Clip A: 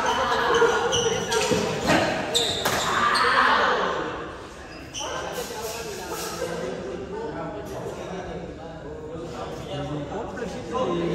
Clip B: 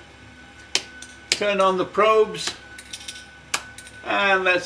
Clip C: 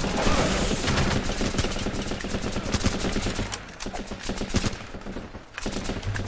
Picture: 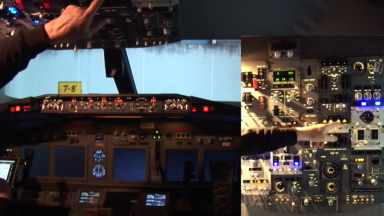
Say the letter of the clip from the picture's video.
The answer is B